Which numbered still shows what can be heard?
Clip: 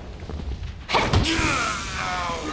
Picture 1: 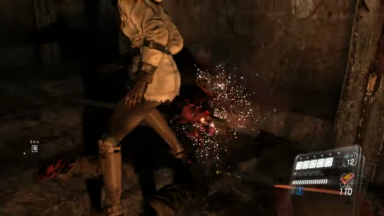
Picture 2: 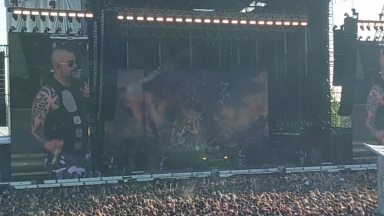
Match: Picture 1